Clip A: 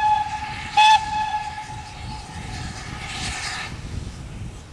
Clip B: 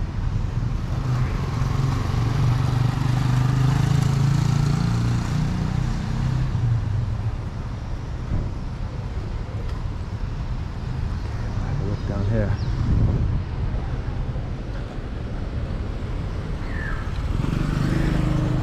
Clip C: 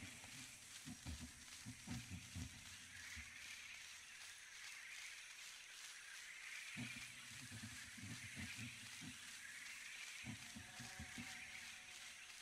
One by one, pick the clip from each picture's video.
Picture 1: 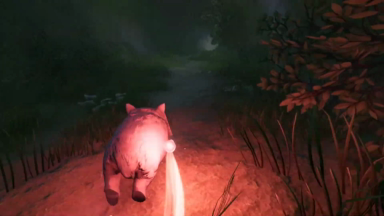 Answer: C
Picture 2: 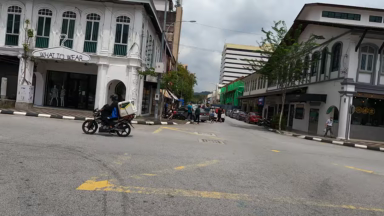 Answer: B